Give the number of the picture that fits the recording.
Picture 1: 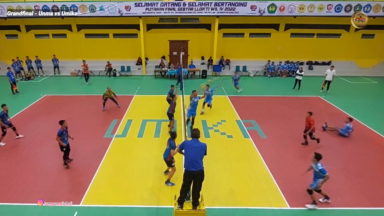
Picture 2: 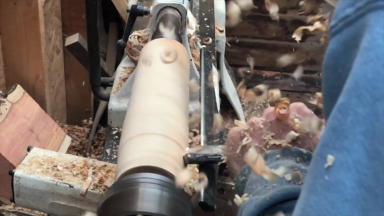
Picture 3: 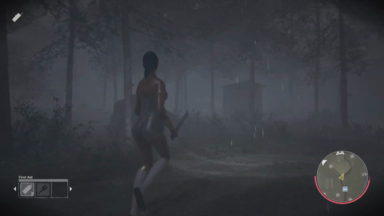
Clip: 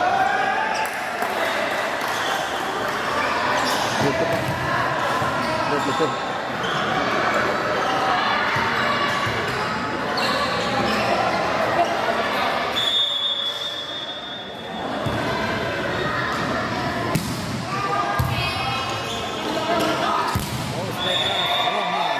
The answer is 1